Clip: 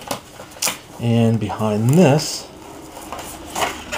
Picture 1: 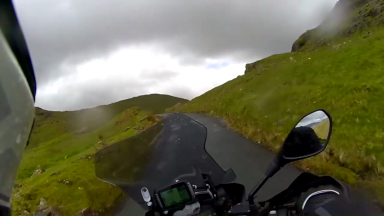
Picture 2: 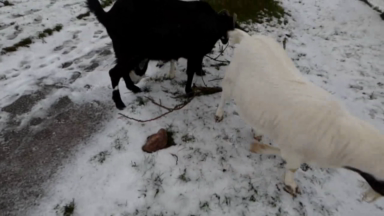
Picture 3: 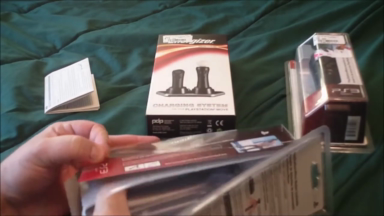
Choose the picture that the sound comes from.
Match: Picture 3